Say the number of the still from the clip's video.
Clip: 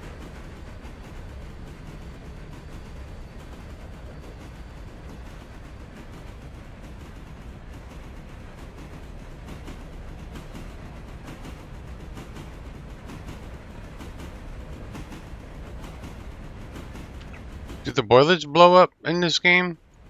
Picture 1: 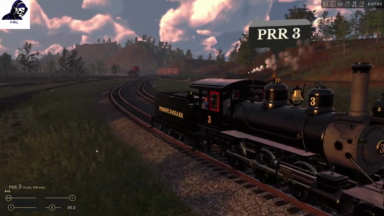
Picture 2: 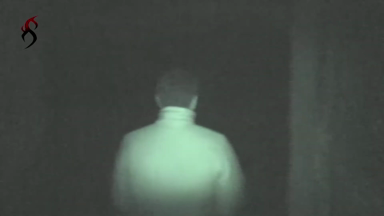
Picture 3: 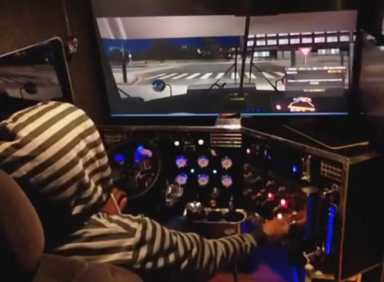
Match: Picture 1